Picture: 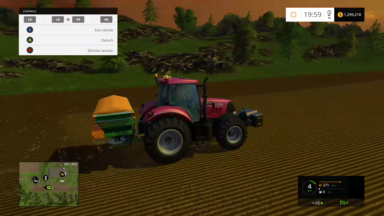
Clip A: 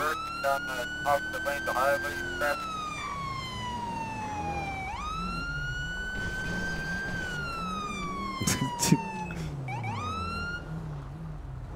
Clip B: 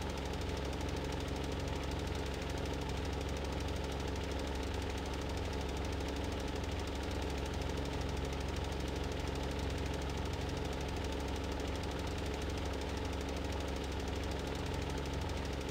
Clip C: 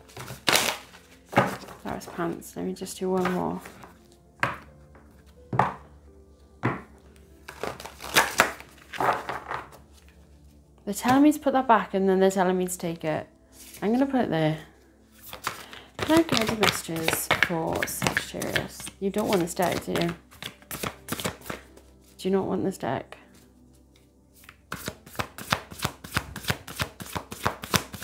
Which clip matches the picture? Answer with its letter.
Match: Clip B